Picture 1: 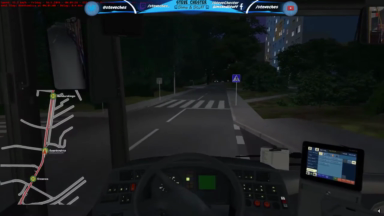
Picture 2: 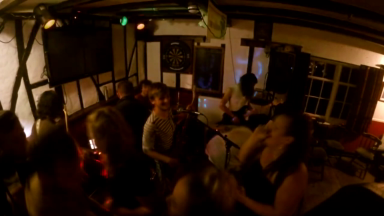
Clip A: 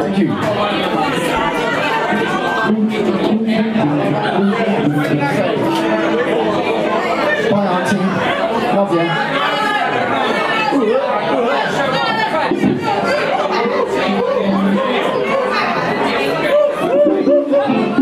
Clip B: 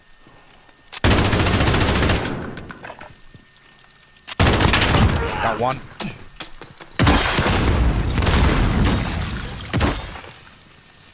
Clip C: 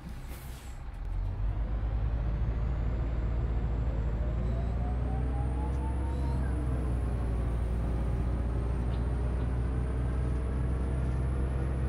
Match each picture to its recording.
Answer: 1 C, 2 A